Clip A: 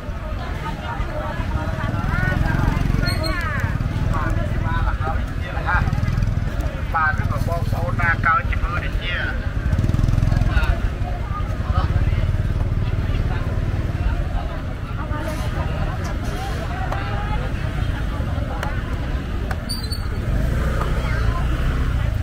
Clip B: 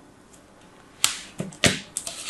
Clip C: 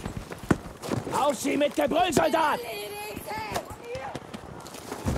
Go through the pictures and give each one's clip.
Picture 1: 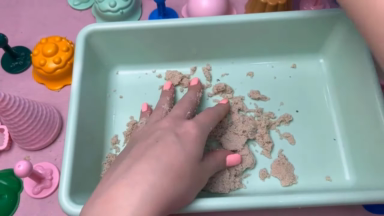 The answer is B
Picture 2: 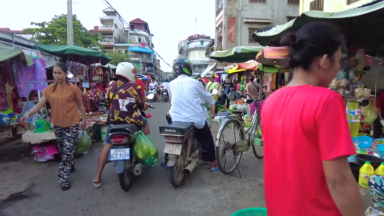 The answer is A